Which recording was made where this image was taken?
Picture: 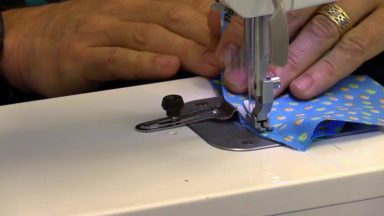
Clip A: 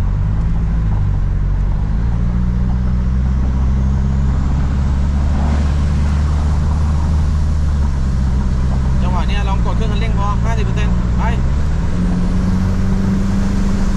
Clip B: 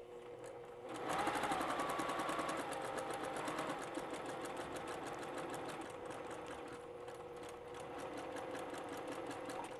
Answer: B